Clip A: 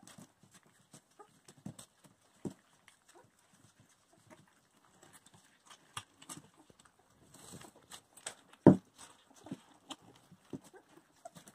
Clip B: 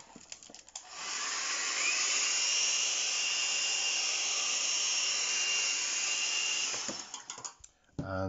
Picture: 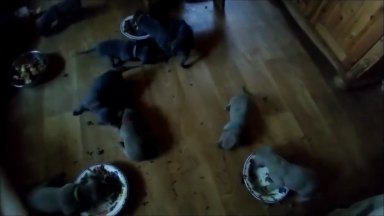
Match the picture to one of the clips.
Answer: A